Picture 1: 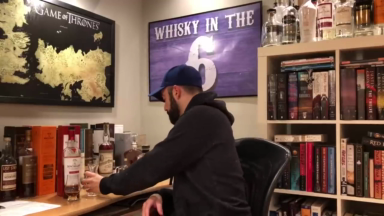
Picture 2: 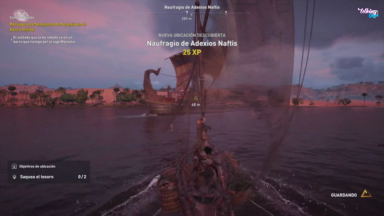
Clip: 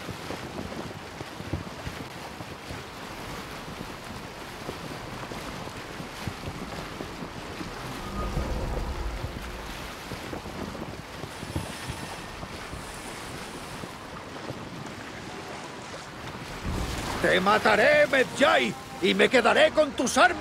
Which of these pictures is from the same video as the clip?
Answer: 2